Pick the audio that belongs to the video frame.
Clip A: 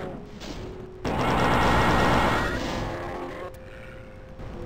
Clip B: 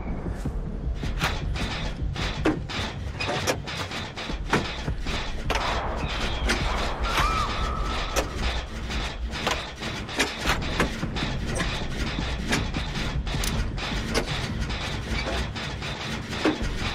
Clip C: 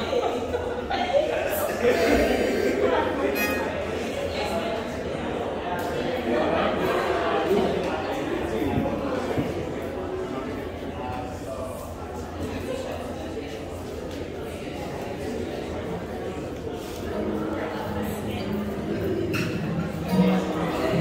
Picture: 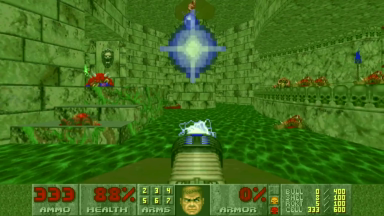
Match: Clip A